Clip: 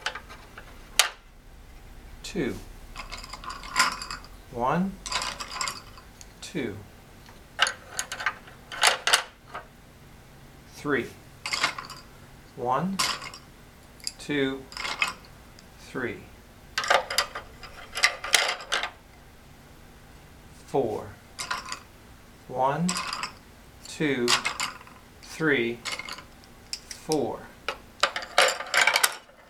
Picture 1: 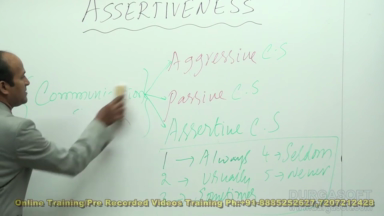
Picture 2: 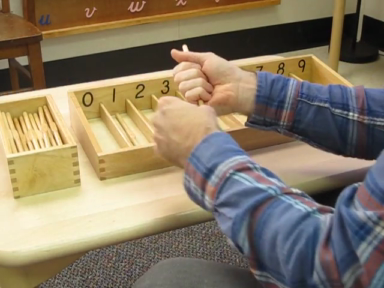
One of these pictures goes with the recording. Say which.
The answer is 2